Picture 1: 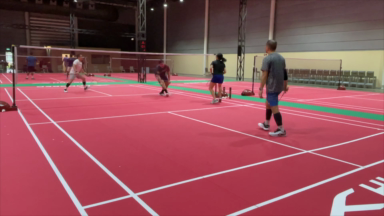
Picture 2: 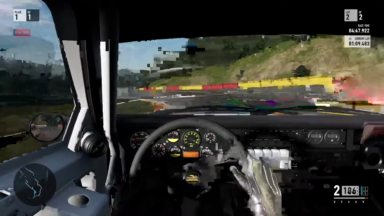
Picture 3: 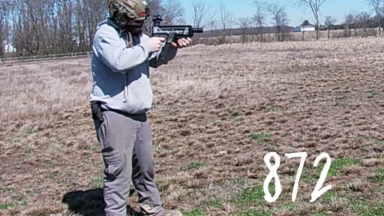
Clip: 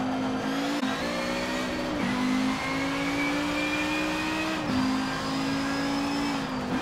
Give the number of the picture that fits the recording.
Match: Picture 2